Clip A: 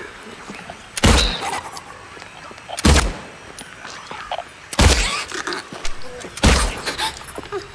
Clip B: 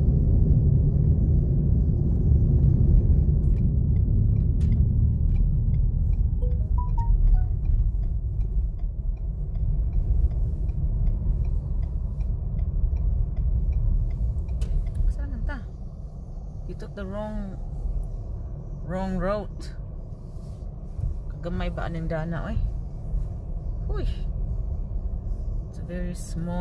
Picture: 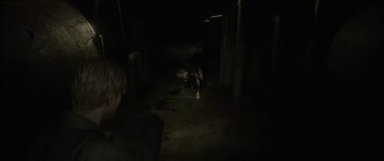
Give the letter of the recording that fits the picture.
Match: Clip A